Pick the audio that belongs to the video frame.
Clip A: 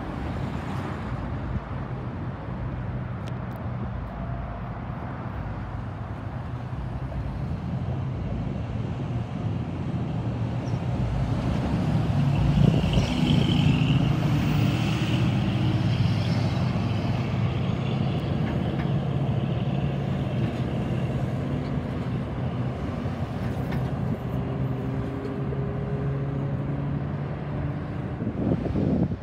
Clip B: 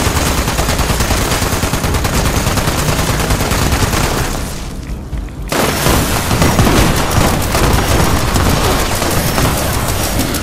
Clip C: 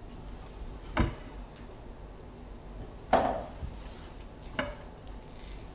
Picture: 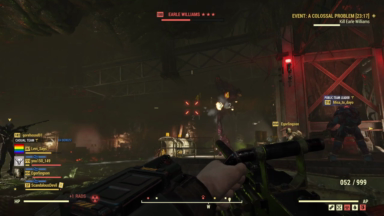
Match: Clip B